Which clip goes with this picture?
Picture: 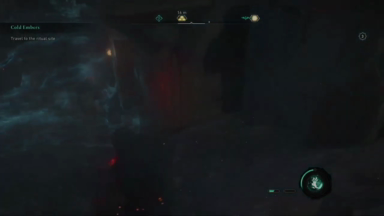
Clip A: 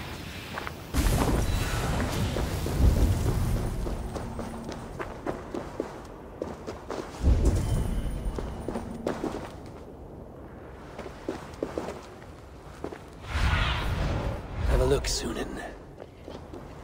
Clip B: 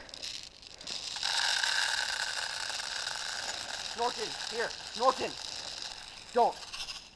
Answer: A